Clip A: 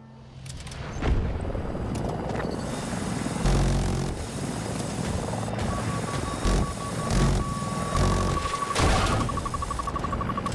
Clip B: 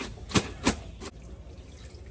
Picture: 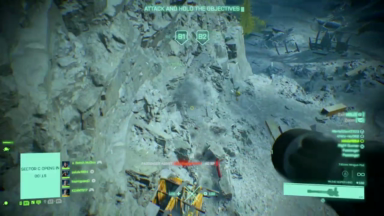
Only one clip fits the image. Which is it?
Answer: A